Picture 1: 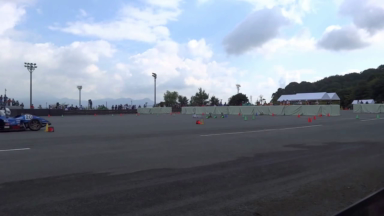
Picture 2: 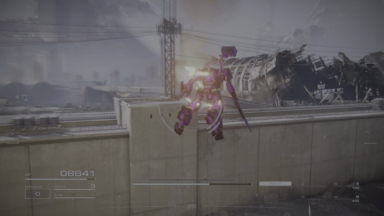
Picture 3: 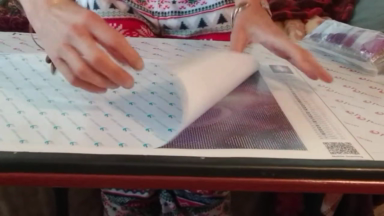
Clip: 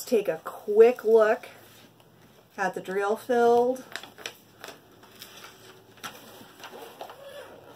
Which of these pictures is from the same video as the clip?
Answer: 3